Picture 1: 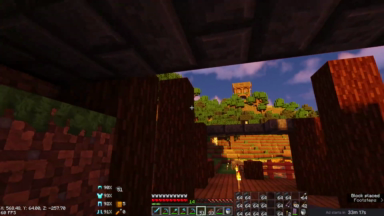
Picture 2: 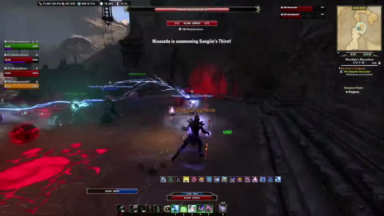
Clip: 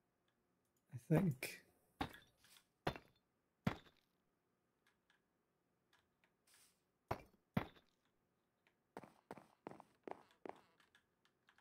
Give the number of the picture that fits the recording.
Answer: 1